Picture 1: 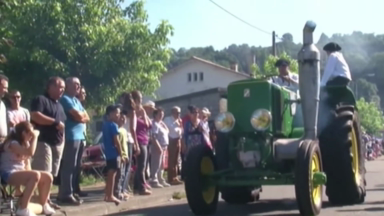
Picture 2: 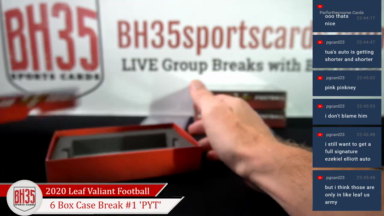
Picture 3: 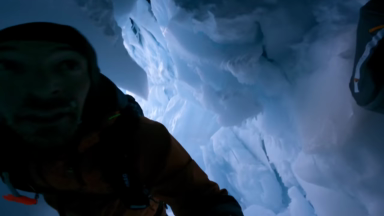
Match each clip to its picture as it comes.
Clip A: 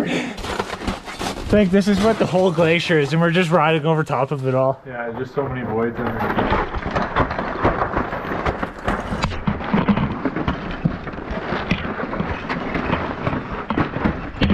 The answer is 3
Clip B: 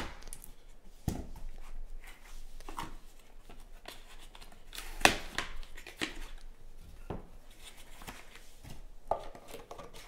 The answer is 2